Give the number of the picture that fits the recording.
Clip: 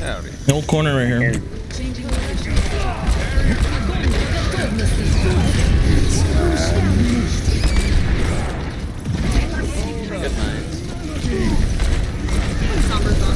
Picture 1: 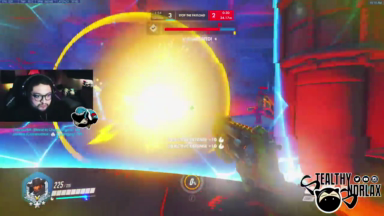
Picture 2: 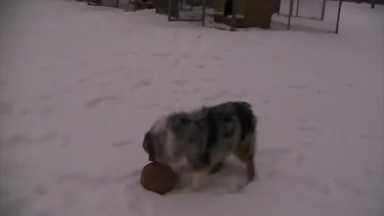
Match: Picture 1